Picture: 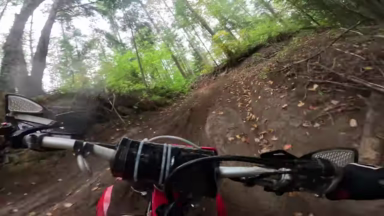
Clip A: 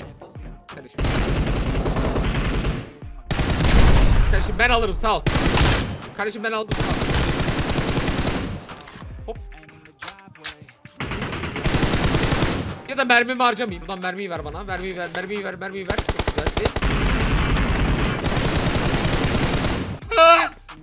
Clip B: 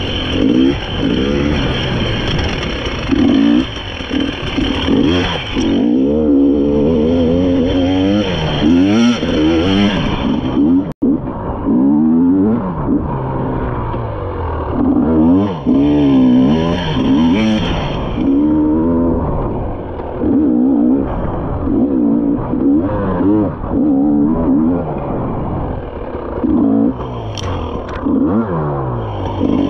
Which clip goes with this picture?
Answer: B